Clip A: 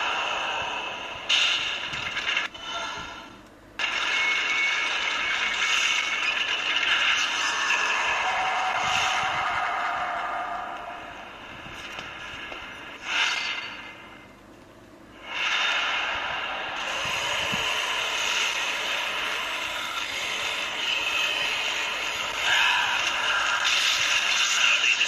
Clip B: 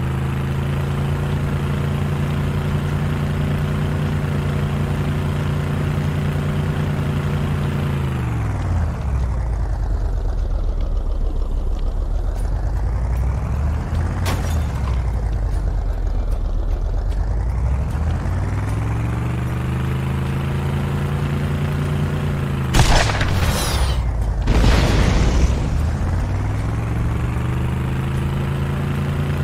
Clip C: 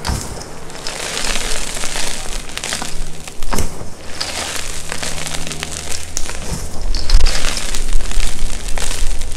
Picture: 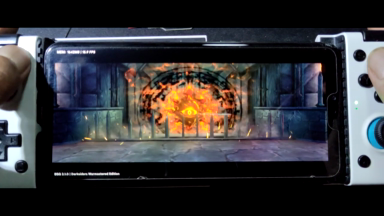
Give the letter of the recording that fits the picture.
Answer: A